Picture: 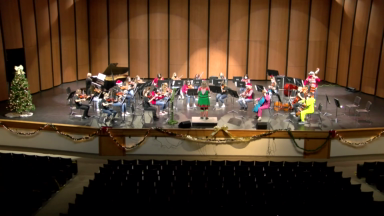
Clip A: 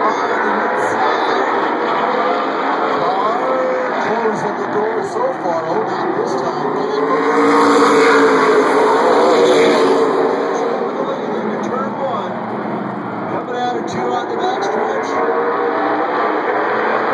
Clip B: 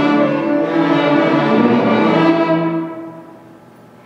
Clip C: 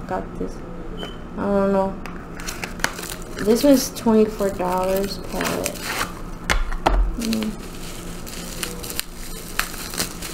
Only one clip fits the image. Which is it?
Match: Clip B